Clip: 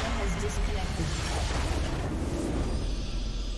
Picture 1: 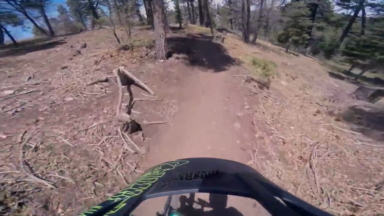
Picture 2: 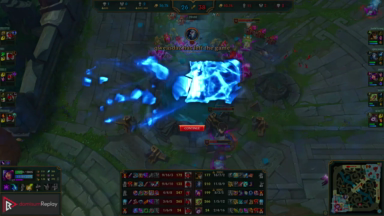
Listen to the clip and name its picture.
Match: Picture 2